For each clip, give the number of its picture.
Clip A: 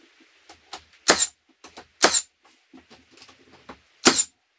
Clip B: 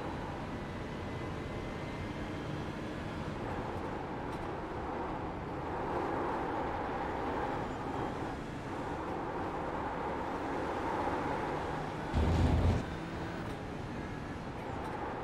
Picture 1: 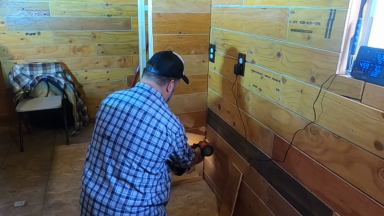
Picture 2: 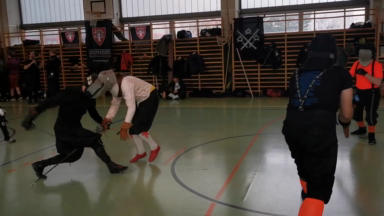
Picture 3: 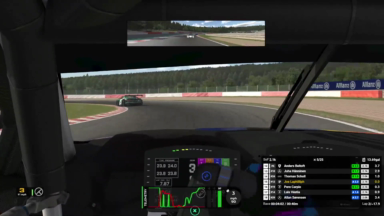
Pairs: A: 1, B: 3